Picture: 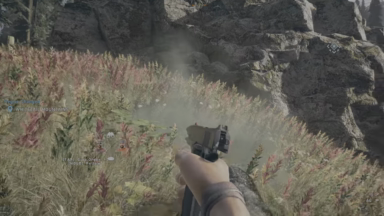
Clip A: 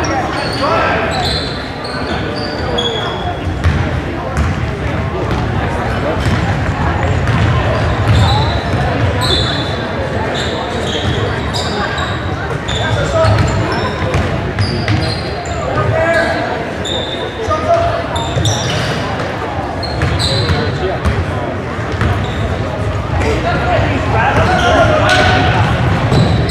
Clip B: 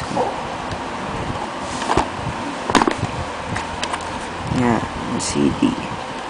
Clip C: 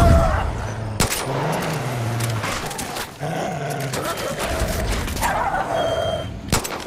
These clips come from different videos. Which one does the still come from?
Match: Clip C